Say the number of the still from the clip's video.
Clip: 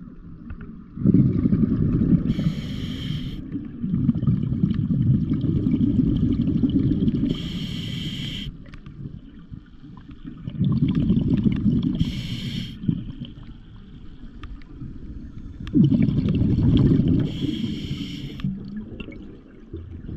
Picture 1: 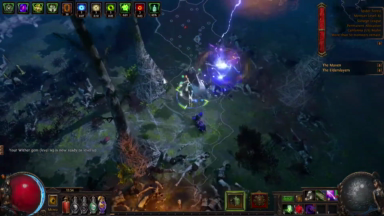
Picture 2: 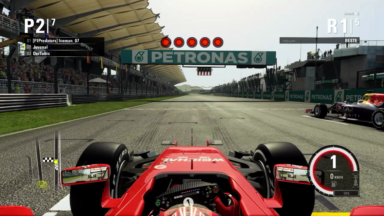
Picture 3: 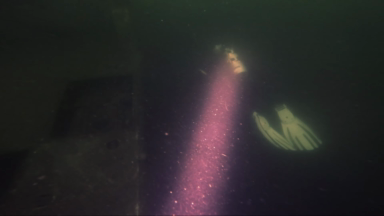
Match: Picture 3